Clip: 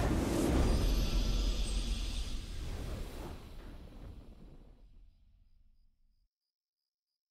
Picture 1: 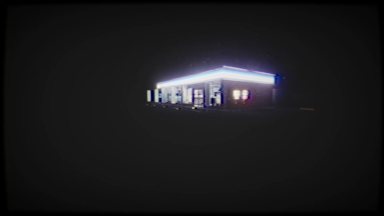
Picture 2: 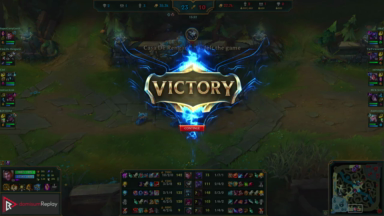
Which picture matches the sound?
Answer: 2